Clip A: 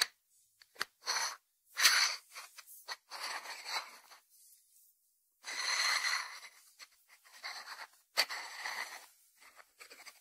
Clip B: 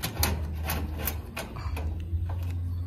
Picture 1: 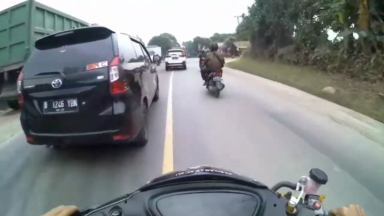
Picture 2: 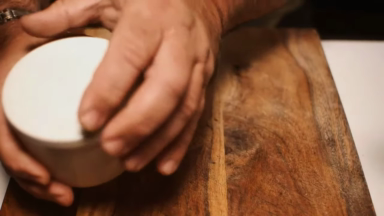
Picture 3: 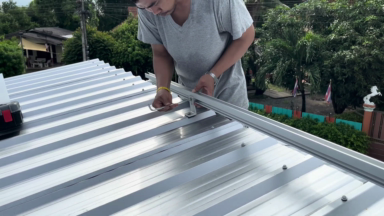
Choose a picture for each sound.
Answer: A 2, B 3